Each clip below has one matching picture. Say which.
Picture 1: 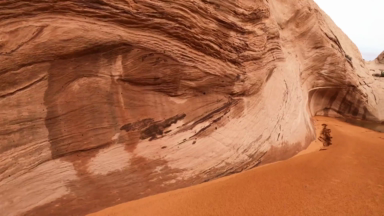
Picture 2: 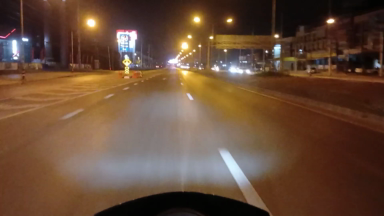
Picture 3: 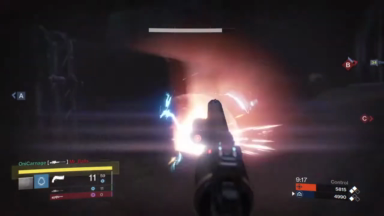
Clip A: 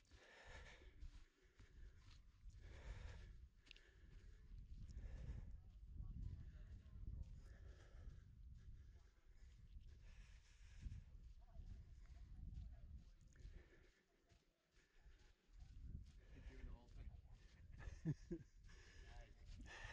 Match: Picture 1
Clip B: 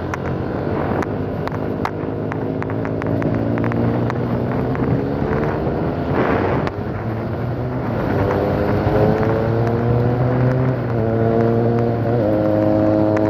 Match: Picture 2